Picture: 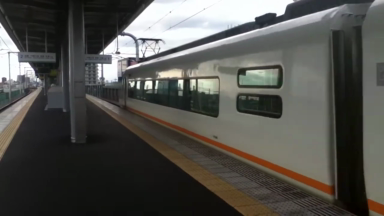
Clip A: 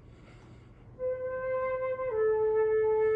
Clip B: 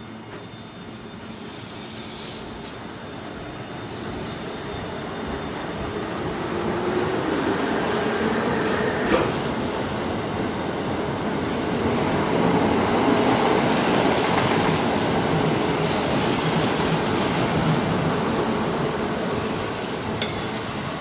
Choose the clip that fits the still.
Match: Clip B